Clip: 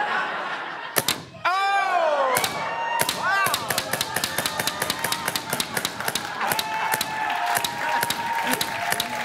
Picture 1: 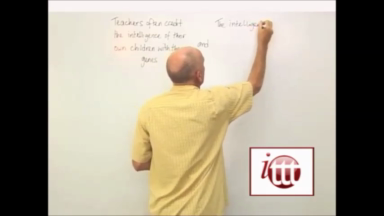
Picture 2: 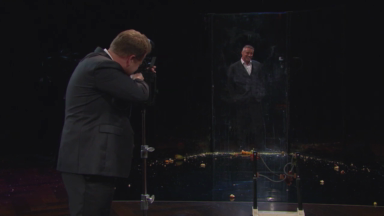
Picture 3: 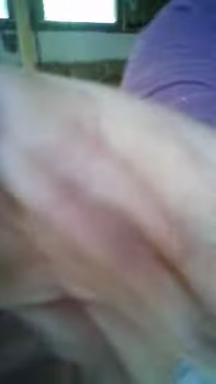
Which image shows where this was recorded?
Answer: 2